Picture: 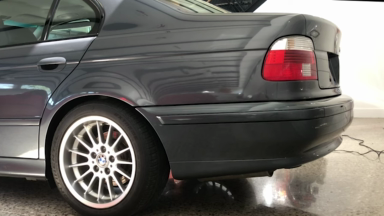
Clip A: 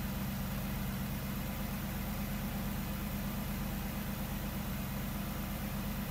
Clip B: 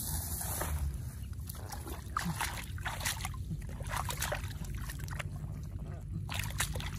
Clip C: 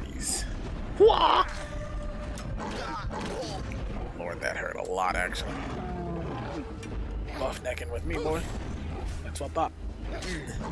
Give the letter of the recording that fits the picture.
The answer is A